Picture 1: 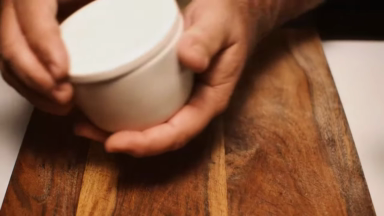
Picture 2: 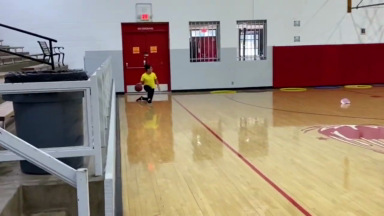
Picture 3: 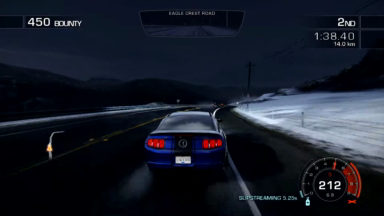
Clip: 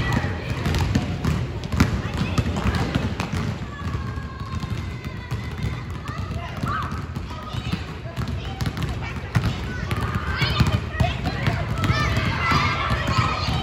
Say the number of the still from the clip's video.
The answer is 2